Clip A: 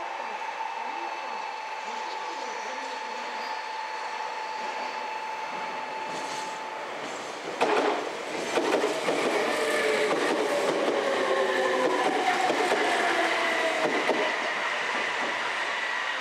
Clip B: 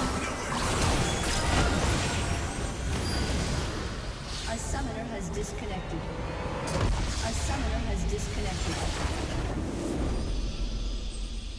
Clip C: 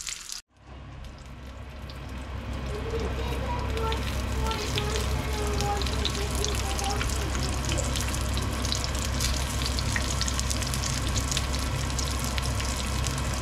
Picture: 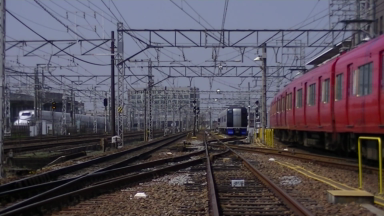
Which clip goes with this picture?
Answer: A